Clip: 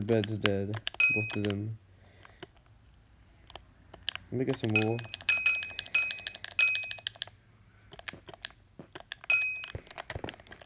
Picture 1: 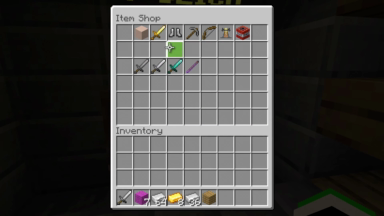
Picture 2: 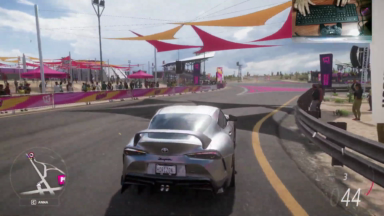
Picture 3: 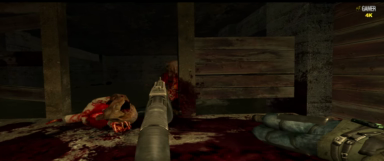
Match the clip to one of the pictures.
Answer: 1